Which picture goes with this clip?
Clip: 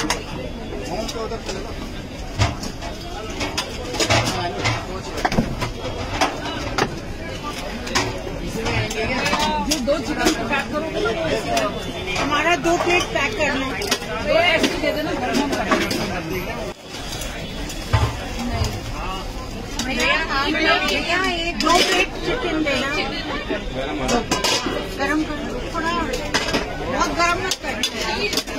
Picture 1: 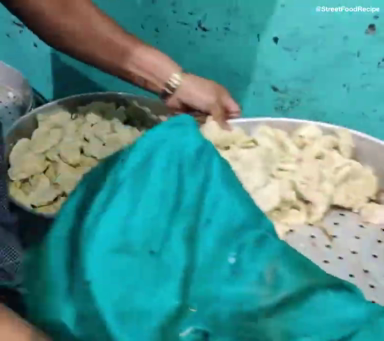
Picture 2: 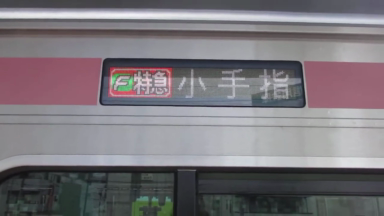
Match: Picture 1